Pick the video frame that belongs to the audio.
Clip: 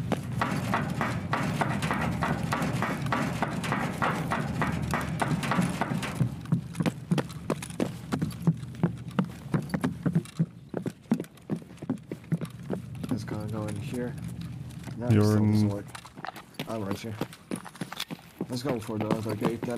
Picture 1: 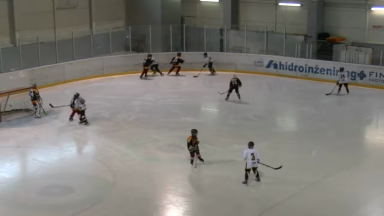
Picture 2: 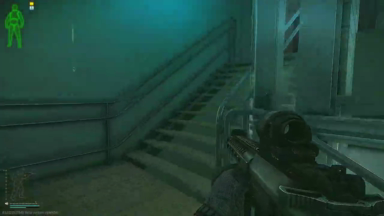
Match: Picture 2